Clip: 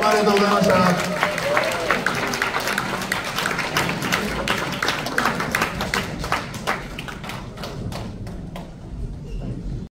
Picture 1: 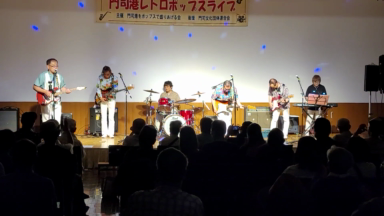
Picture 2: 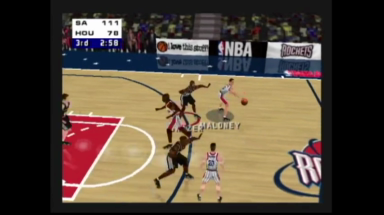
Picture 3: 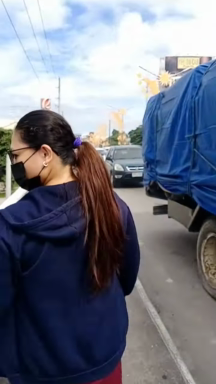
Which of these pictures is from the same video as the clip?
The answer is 1